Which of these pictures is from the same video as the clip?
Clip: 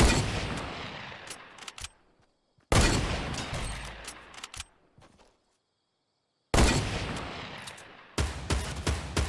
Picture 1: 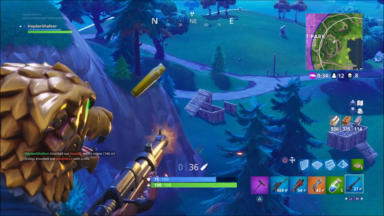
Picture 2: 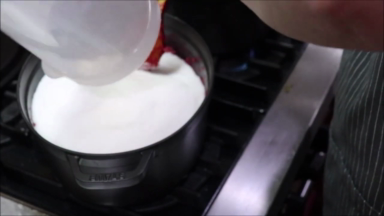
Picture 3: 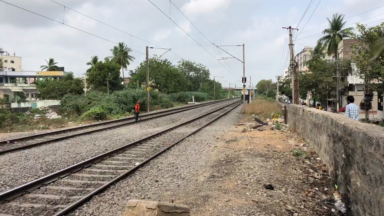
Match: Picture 1